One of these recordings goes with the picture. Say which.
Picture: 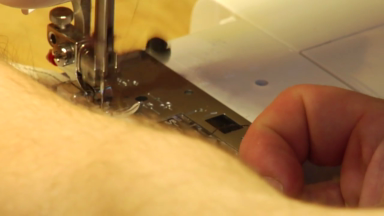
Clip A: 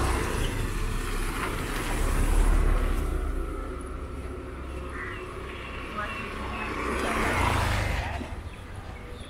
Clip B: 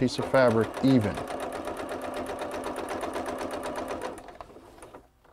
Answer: B